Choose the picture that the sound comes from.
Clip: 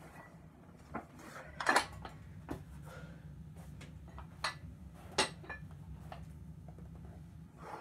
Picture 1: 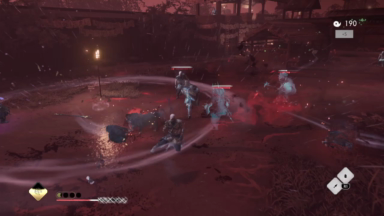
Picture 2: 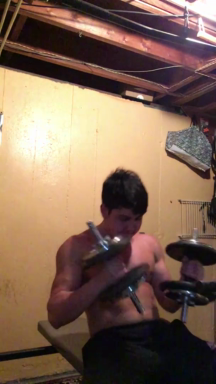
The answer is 2